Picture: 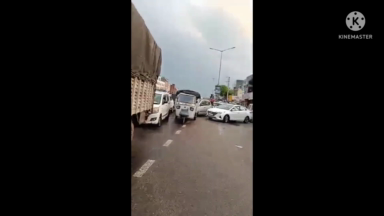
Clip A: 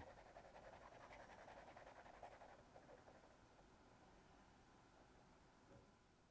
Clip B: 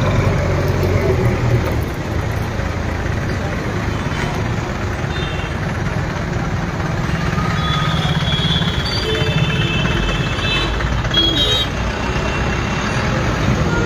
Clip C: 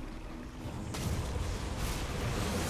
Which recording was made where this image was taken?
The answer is B